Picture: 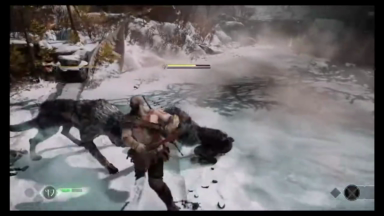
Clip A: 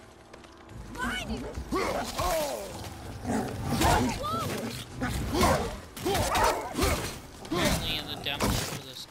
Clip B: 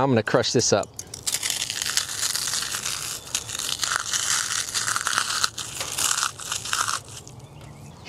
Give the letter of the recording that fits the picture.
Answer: A